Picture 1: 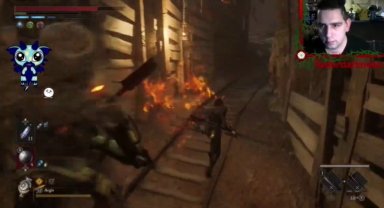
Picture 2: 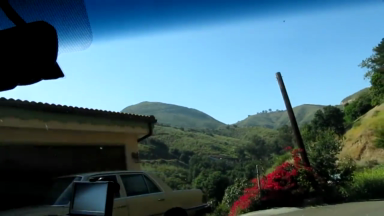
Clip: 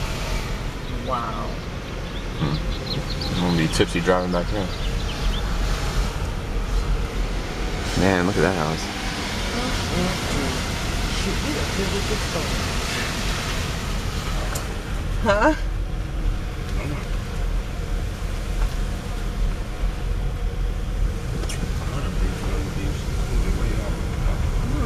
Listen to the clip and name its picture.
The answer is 2